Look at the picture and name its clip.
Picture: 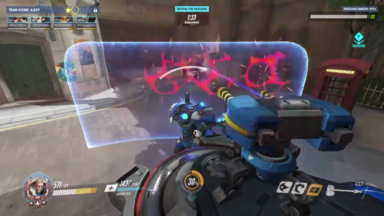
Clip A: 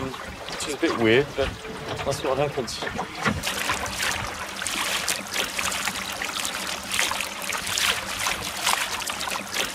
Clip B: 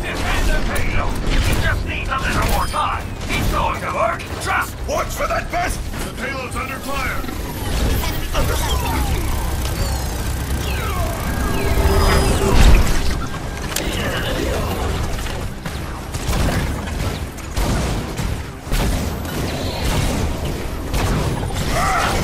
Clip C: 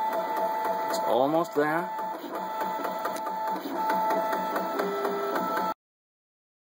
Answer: B